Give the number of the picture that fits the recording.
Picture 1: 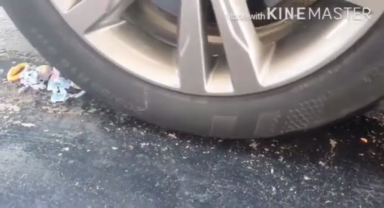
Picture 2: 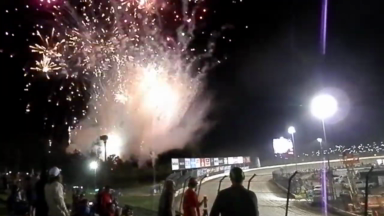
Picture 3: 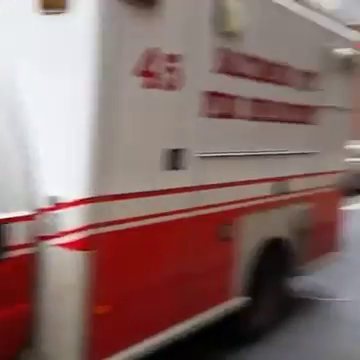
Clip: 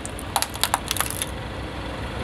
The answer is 1